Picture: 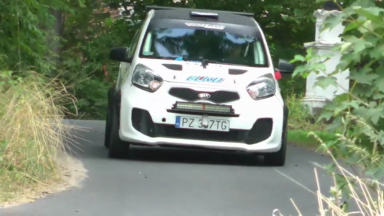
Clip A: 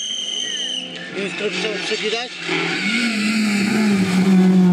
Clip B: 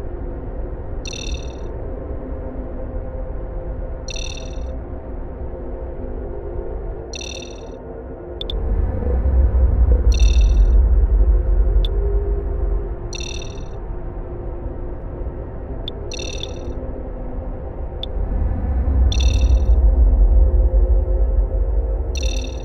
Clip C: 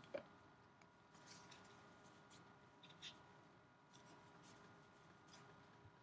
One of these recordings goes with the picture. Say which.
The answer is A